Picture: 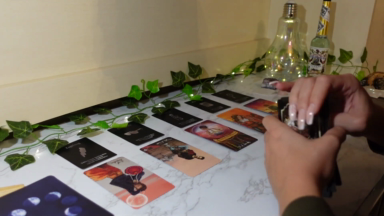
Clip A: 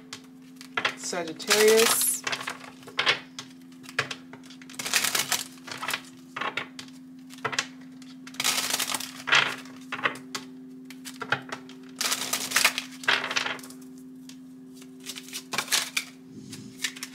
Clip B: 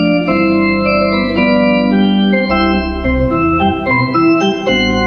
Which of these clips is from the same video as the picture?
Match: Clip A